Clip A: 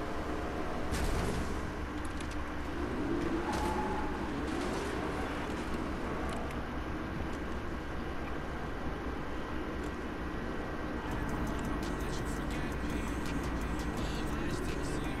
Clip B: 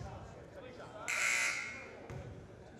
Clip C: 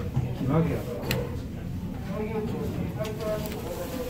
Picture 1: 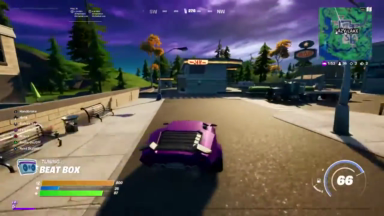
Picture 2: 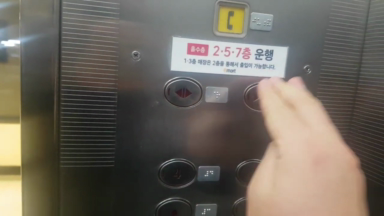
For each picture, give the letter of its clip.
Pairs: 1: A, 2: C